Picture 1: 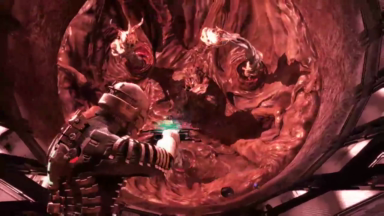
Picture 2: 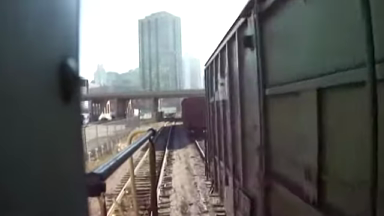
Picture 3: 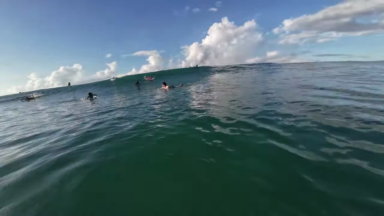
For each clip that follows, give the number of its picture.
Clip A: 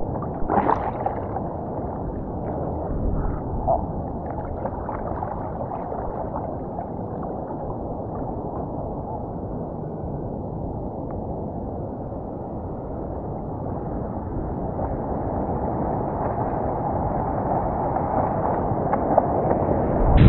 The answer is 3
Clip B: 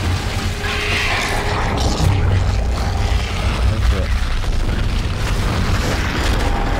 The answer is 1